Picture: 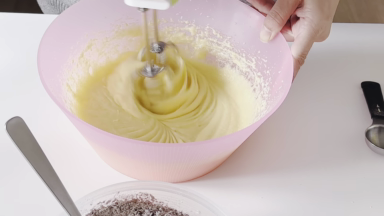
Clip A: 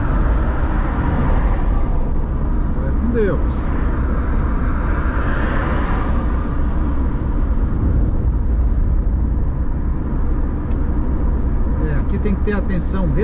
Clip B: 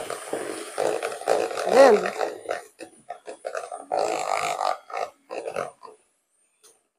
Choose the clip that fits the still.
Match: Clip B